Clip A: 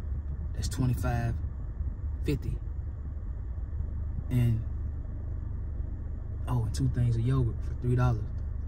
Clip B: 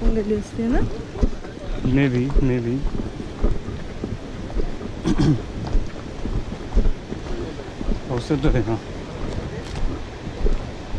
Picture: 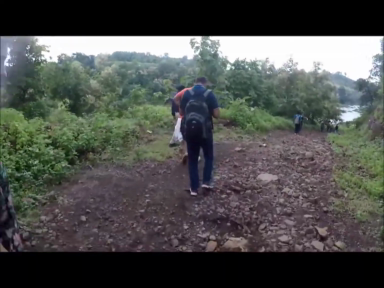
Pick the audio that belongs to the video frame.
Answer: B